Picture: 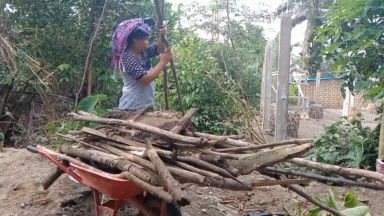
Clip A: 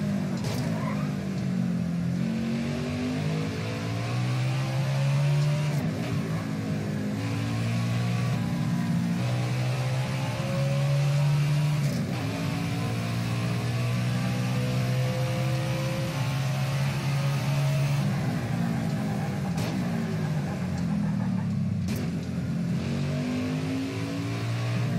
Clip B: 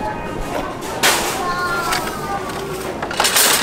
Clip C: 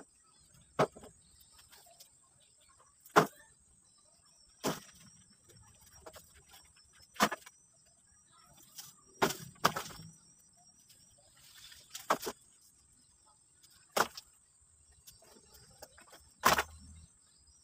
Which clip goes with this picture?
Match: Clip C